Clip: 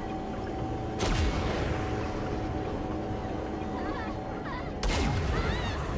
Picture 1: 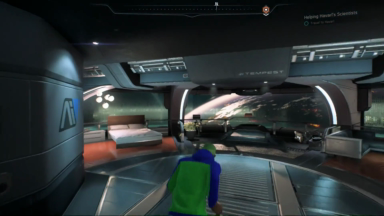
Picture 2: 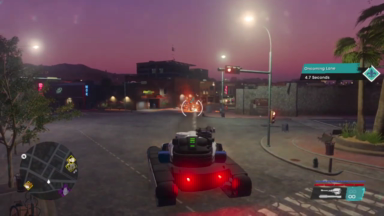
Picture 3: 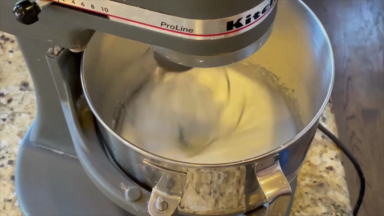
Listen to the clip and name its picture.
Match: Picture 2